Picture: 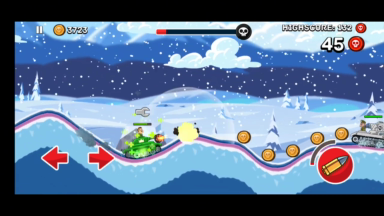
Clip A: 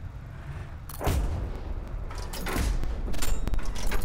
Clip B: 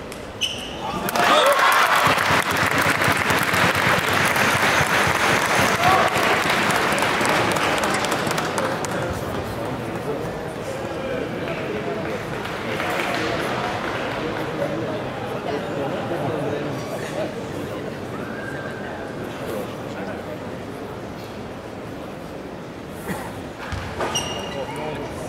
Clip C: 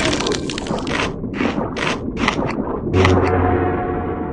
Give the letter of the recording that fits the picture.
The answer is A